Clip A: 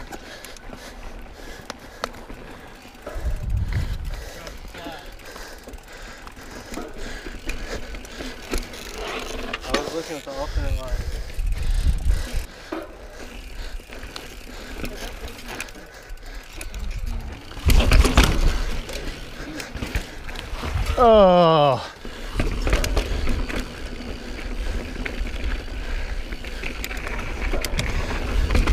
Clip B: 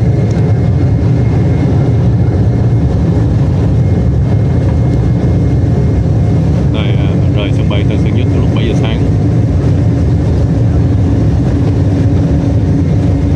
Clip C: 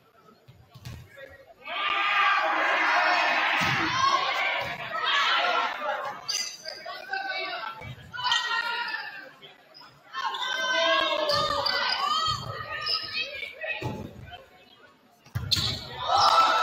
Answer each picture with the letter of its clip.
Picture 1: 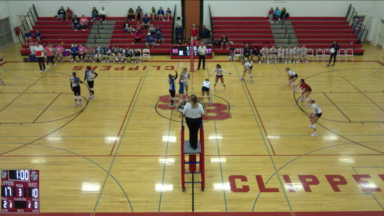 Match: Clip C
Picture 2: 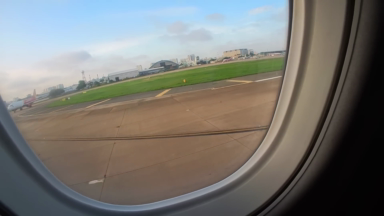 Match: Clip B